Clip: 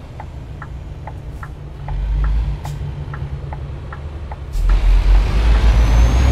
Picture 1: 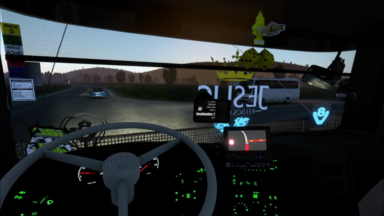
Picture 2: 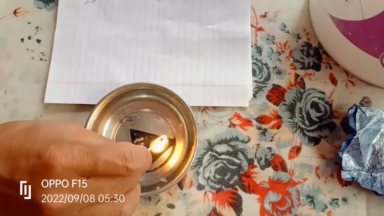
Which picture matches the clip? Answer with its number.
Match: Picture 1